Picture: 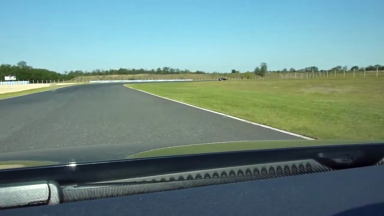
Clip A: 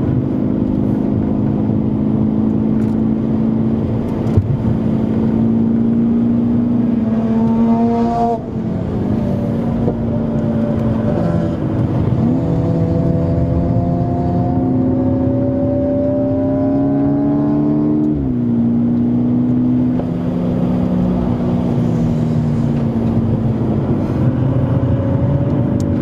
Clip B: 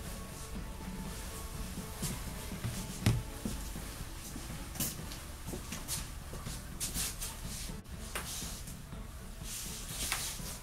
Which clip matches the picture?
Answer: A